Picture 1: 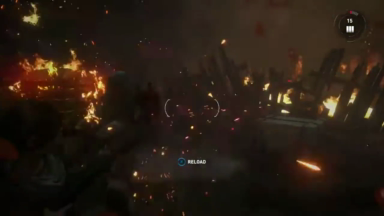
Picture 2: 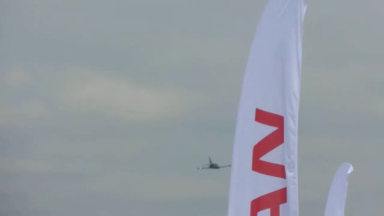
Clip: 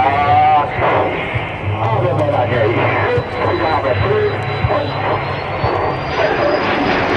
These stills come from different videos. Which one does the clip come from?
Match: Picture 2